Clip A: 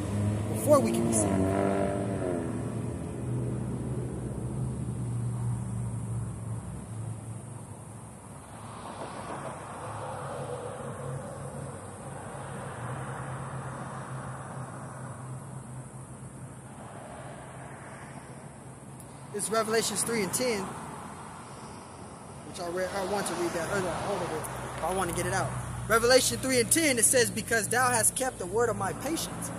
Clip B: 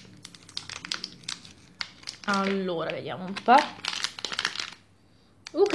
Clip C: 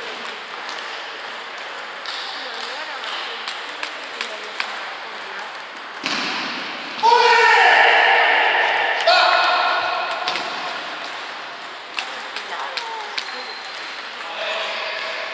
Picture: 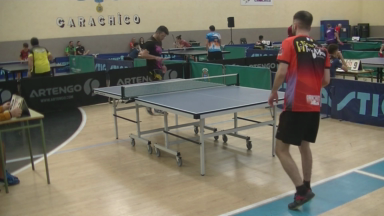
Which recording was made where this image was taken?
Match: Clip C